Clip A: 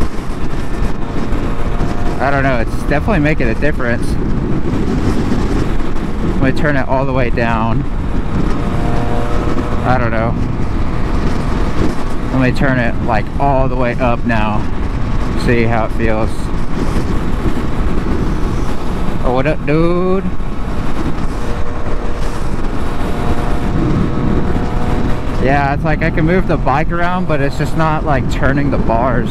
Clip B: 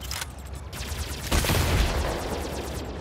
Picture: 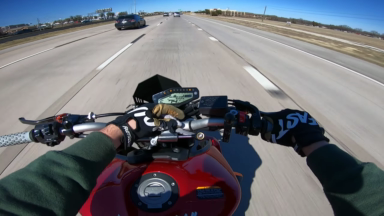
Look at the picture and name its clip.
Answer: A